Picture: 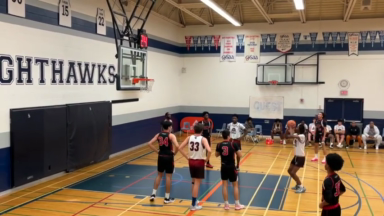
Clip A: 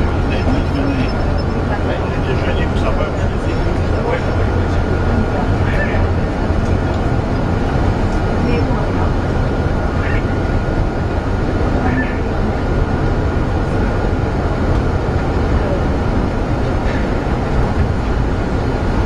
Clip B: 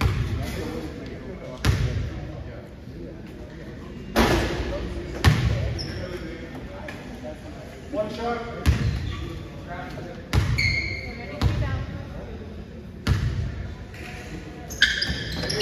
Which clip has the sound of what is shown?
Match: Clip B